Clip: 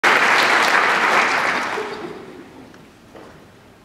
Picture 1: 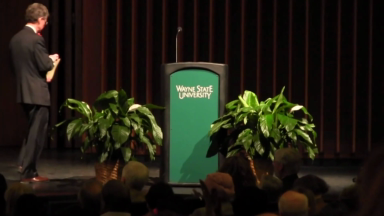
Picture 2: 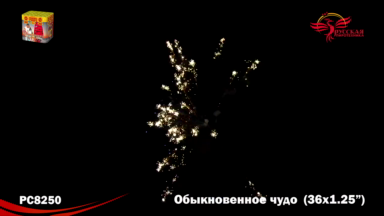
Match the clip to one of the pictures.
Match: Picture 1